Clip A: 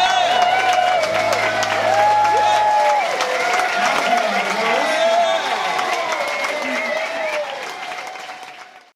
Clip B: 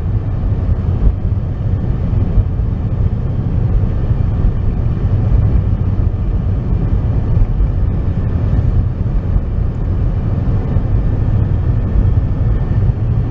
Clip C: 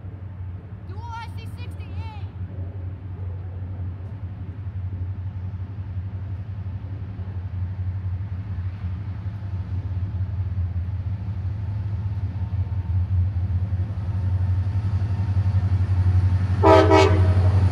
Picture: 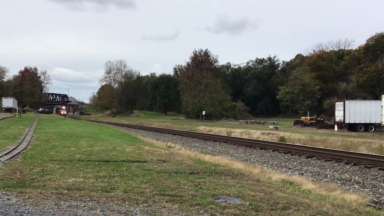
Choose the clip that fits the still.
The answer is C